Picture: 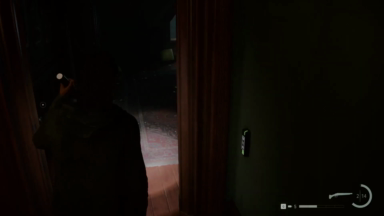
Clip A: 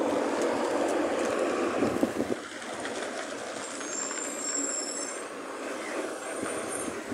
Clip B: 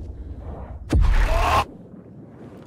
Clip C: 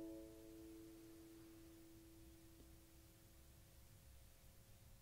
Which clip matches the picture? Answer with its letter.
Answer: B